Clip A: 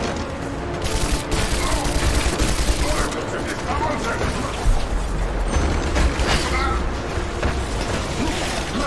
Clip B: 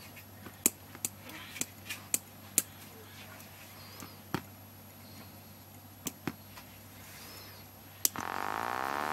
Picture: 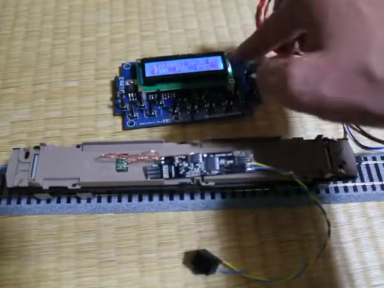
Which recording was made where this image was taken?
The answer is B